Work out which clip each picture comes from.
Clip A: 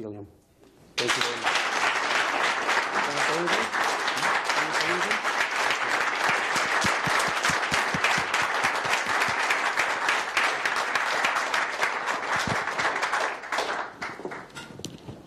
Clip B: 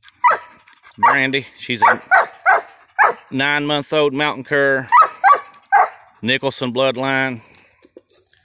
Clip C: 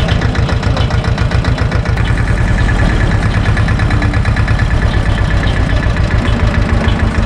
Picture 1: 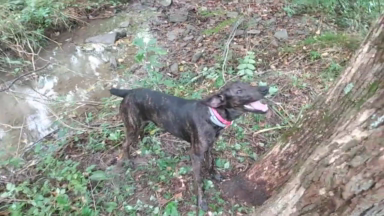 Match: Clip B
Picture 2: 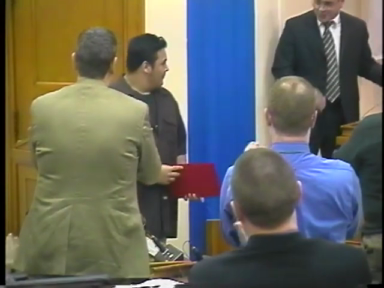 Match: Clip A